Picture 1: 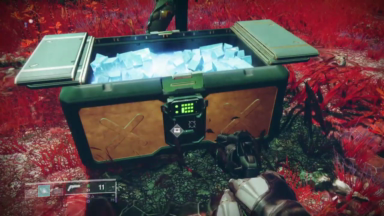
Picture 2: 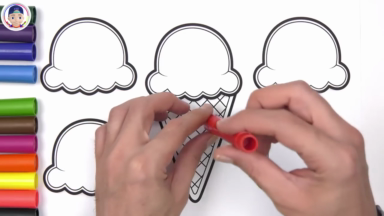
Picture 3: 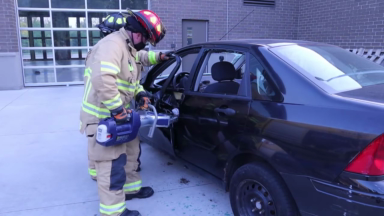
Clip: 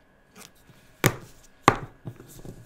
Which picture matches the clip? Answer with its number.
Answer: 2